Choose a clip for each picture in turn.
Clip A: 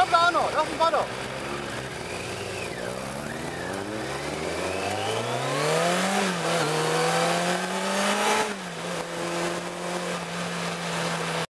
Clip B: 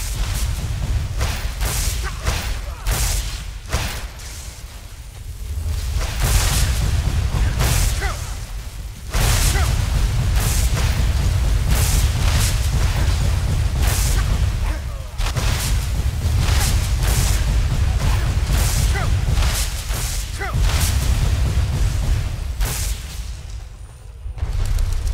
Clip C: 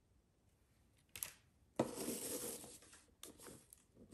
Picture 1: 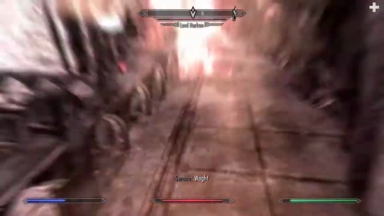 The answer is B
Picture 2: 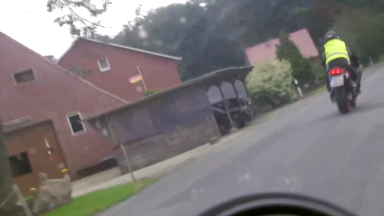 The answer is A